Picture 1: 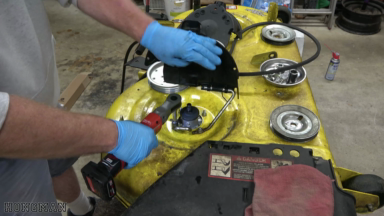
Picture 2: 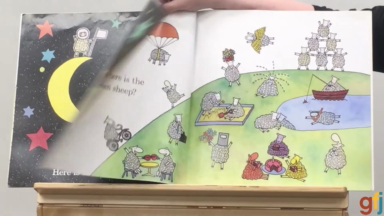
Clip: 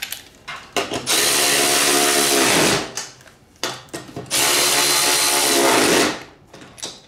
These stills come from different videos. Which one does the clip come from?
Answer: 1